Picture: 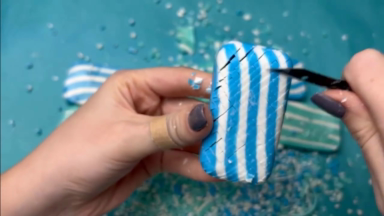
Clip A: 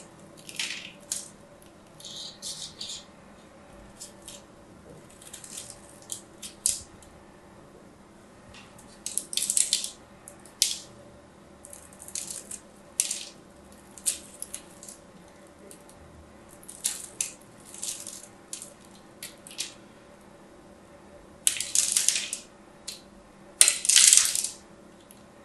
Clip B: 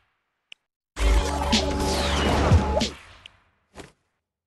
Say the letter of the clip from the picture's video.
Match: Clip A